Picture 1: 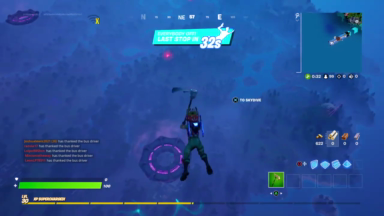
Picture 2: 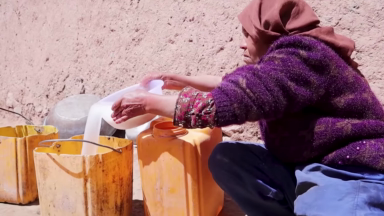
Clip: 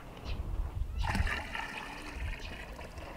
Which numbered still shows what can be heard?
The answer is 2